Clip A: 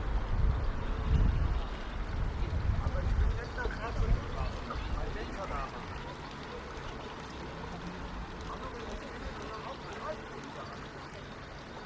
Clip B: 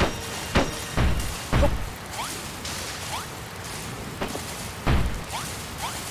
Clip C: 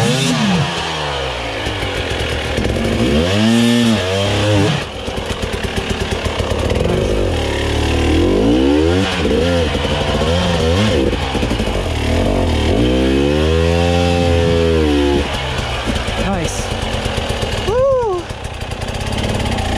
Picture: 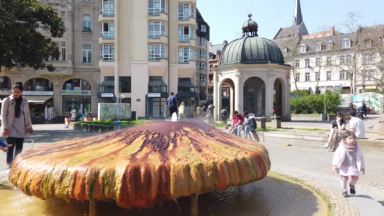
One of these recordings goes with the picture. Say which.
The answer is A